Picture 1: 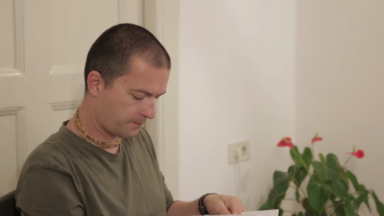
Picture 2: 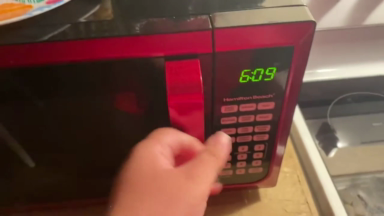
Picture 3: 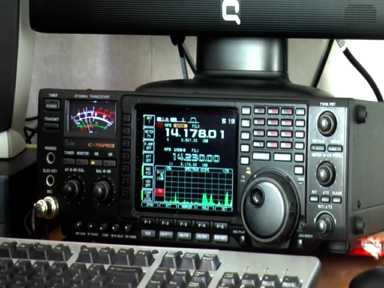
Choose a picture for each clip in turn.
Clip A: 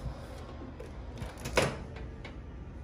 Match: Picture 2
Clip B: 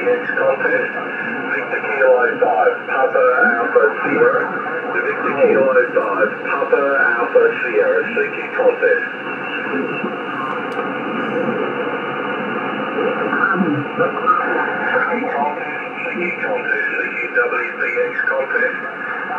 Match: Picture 3